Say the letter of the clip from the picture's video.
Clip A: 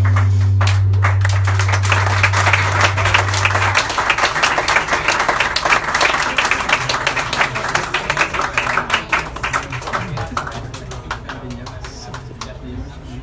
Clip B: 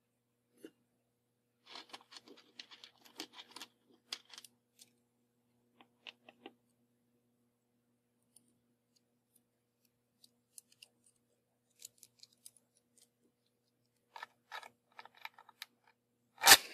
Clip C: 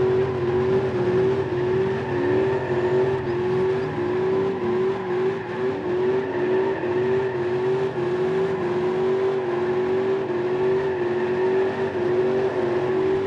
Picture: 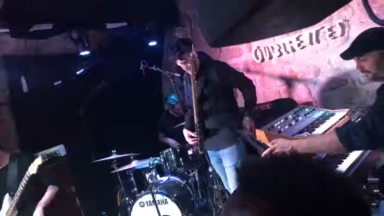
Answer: A